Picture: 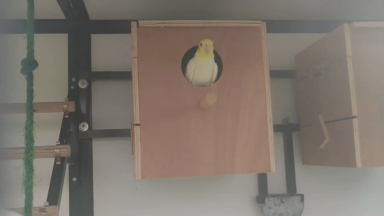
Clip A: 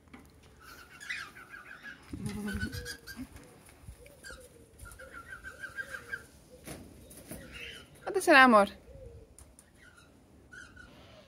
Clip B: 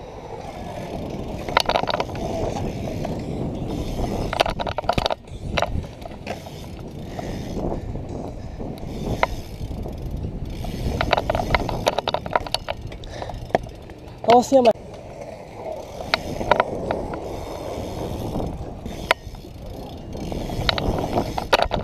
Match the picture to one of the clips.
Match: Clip A